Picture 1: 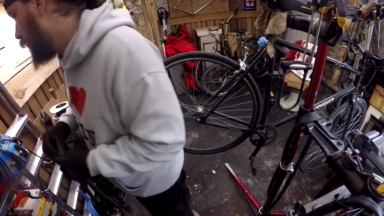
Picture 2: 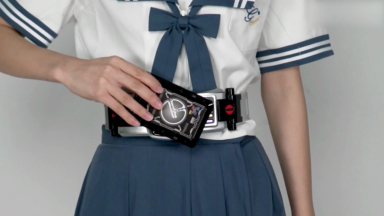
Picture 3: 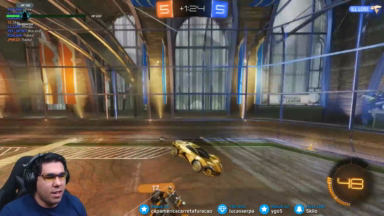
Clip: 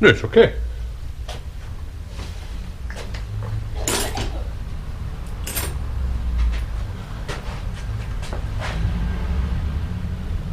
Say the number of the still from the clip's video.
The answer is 1